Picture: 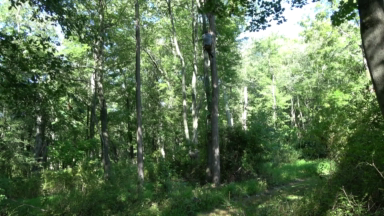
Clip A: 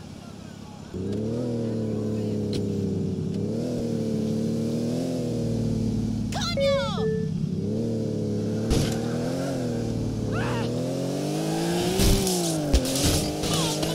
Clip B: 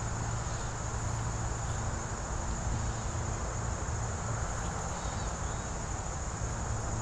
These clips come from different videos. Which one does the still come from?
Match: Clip B